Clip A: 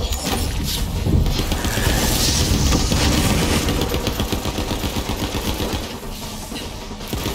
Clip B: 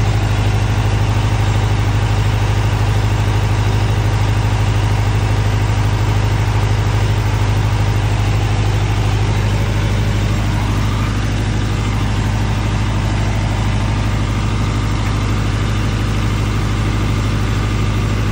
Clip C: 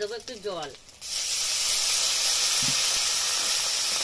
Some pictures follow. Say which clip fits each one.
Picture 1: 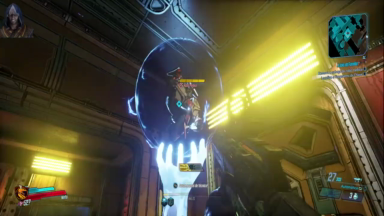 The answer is A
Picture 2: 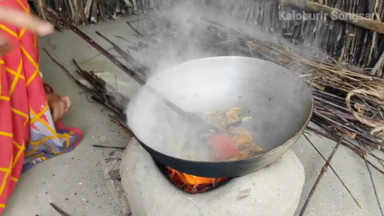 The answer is C